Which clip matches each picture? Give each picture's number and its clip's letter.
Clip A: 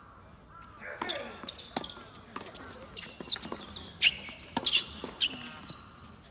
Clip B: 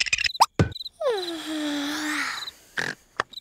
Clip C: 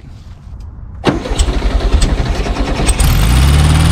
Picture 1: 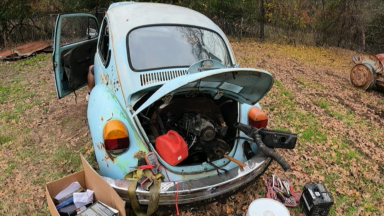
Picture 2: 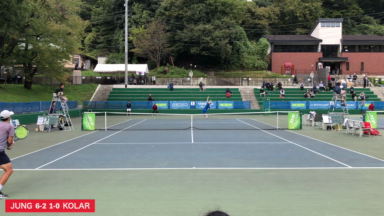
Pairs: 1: C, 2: A